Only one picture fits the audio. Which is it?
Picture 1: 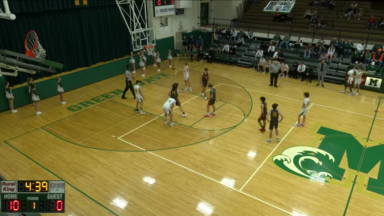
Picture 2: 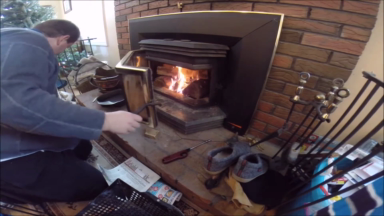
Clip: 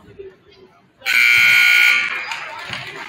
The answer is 1